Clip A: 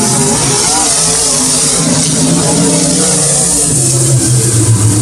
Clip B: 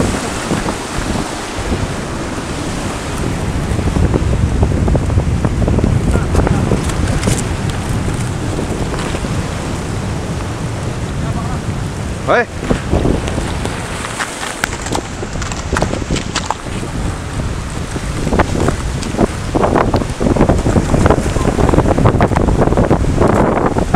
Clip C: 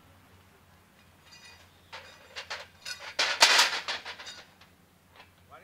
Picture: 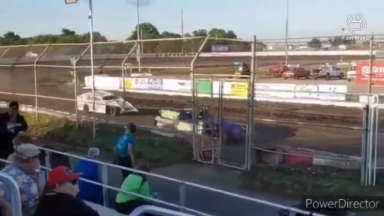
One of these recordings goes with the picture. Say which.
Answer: A